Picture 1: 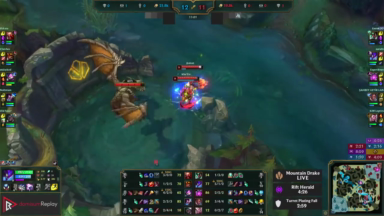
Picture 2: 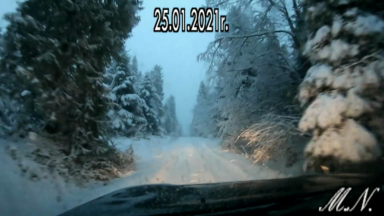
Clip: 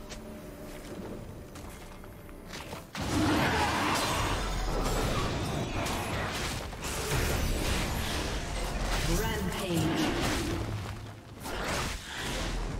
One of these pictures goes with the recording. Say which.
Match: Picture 1